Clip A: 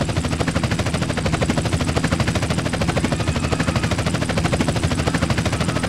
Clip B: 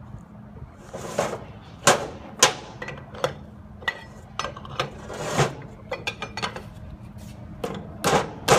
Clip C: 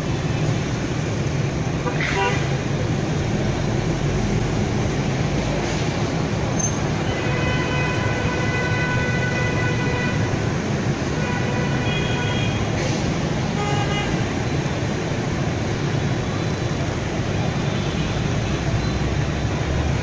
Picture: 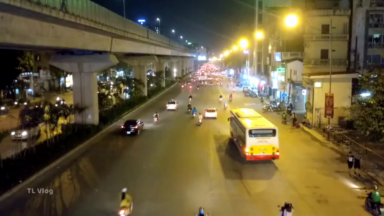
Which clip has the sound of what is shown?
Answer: C